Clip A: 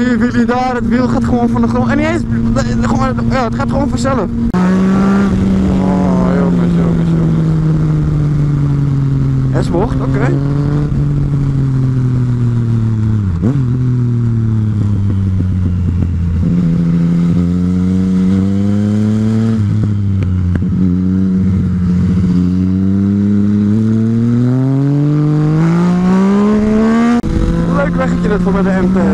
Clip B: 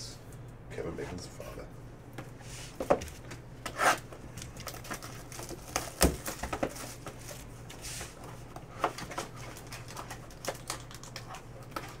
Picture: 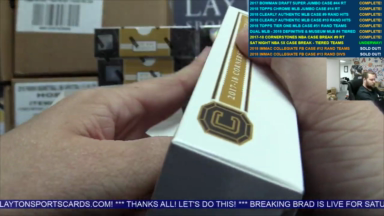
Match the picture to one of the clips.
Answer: B